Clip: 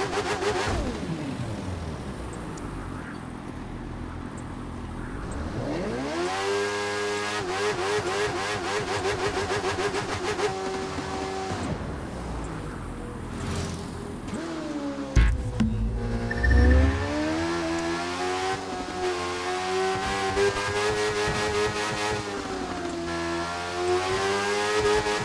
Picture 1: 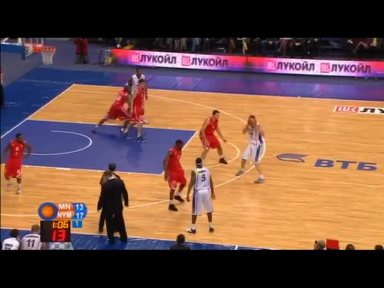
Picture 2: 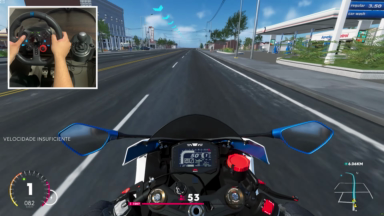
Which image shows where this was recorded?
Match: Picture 2